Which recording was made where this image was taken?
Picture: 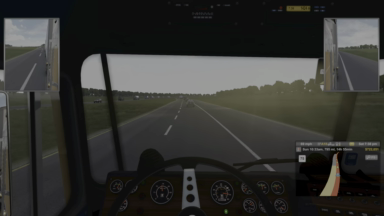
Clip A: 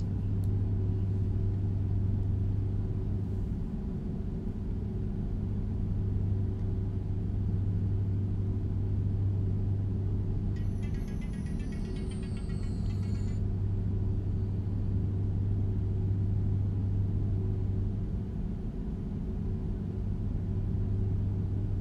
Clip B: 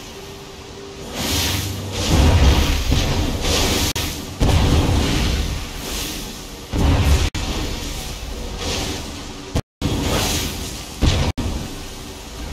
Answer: A